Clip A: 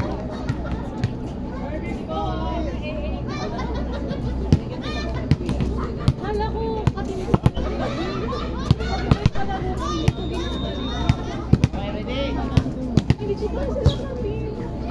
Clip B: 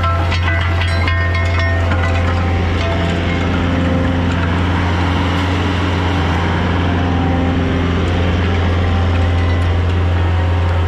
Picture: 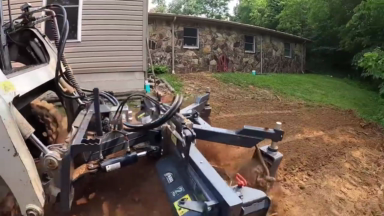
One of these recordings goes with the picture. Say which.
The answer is B